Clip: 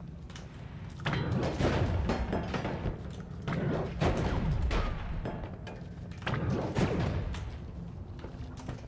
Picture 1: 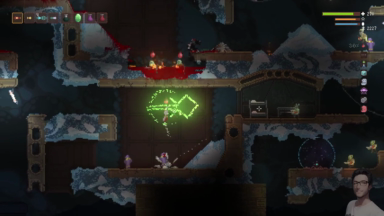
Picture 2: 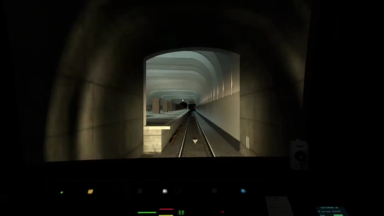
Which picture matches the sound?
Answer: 1